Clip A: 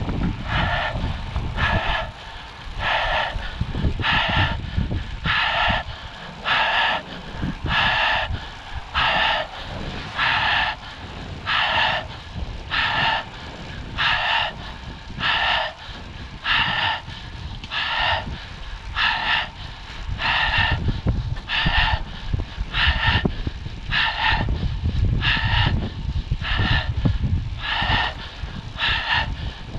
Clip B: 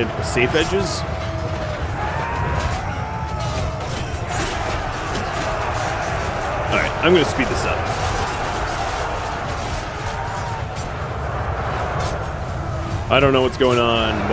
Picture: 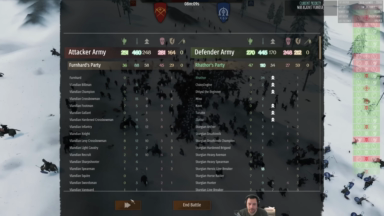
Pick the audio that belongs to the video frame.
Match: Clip B